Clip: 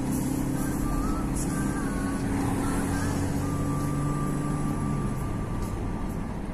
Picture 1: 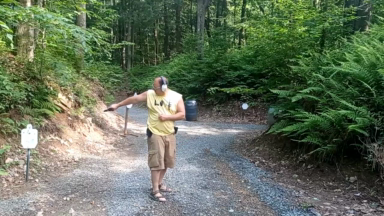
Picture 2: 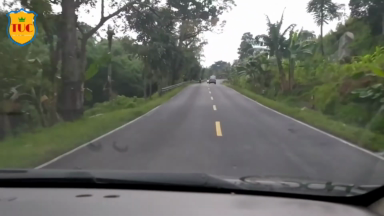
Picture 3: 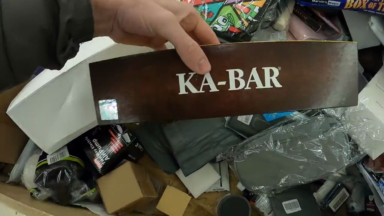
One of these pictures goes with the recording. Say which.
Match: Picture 2